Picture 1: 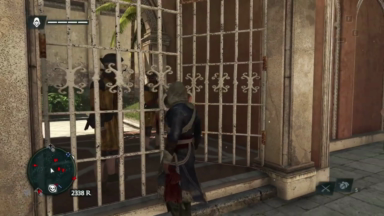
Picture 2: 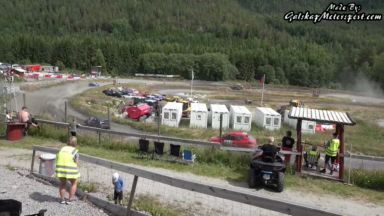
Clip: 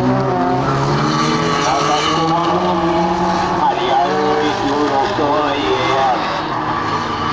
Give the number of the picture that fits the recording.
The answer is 2